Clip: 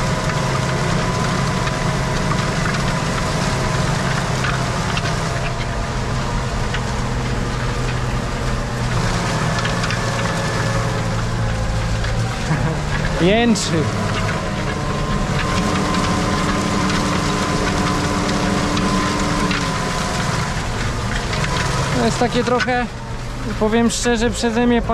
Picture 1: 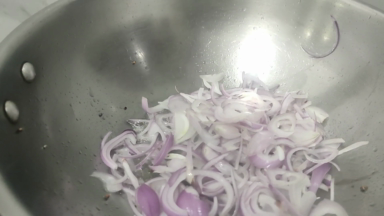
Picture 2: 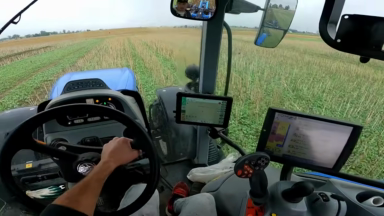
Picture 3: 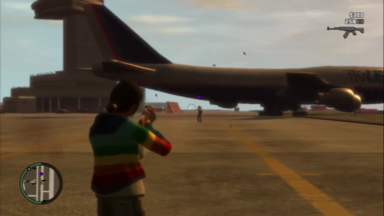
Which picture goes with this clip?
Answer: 2